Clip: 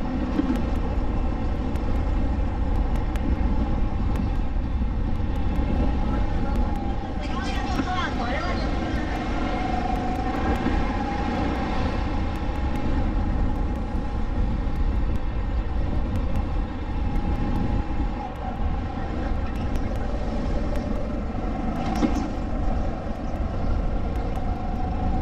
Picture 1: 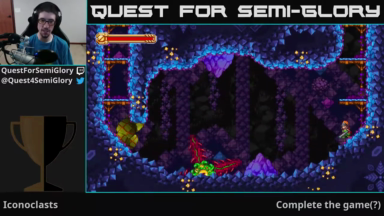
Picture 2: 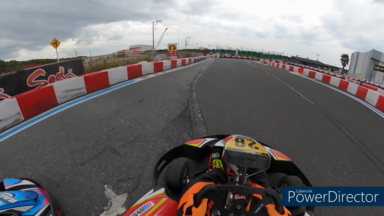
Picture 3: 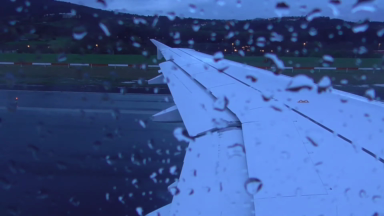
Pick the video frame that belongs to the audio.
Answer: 2